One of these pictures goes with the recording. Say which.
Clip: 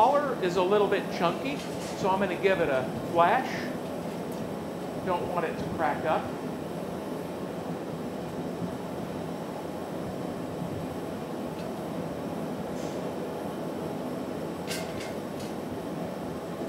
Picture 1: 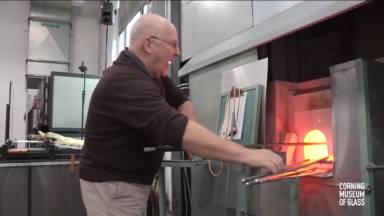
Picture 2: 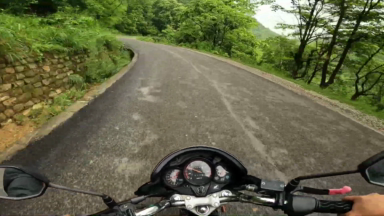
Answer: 1